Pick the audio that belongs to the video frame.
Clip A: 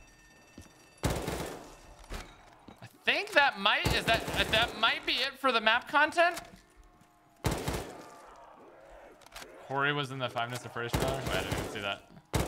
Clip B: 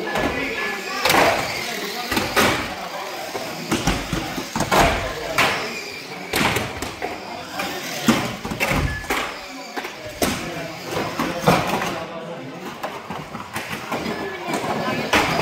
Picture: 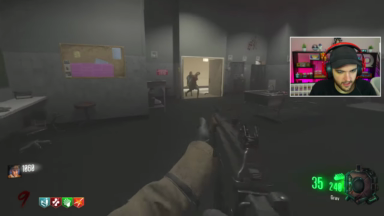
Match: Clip A